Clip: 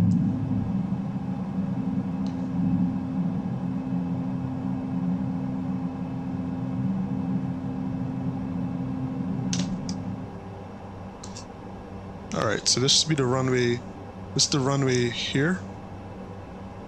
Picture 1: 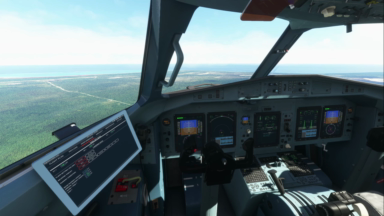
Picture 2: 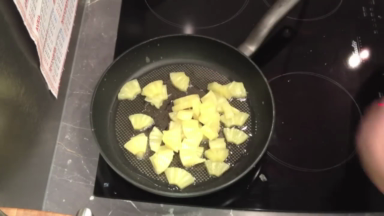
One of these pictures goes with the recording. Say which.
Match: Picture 1